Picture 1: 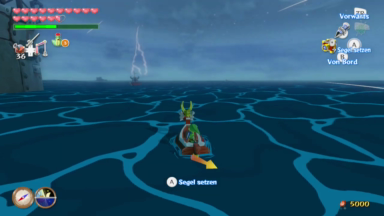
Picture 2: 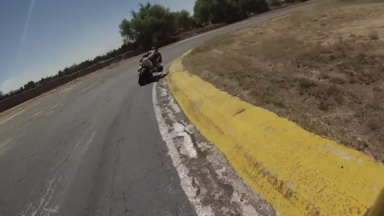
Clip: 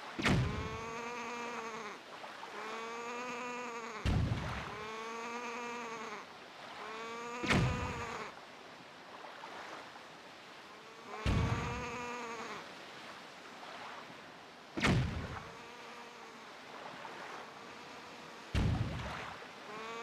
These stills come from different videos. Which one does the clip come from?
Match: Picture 1